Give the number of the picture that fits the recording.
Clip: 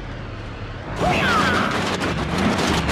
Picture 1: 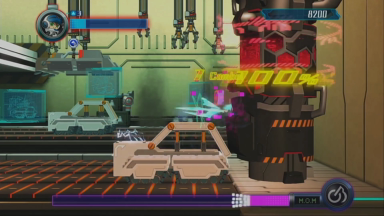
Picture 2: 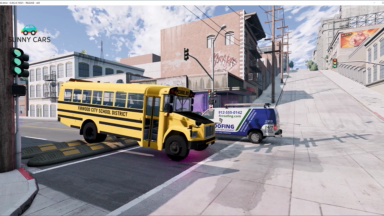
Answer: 2